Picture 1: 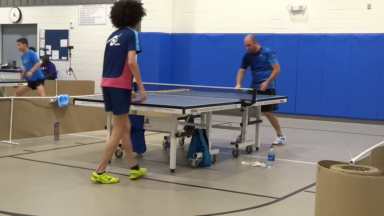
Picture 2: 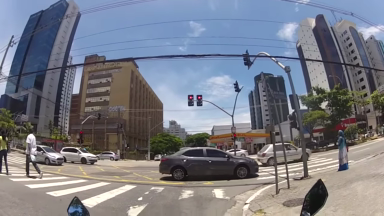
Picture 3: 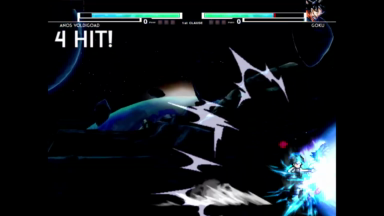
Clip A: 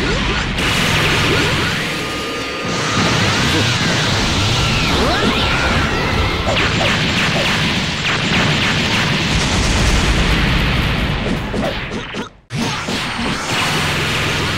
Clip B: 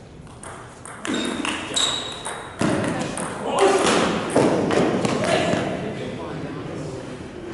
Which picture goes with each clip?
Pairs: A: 3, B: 1